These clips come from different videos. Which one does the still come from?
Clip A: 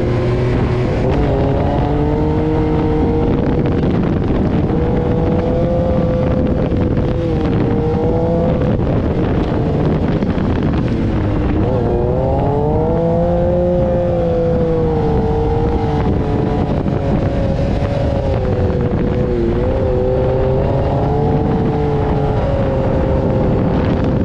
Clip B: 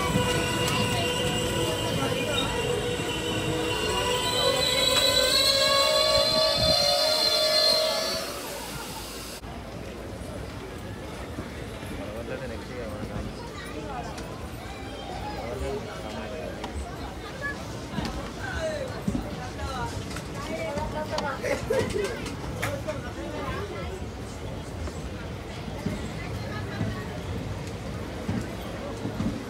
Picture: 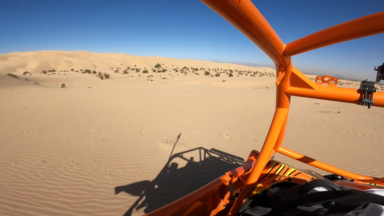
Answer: A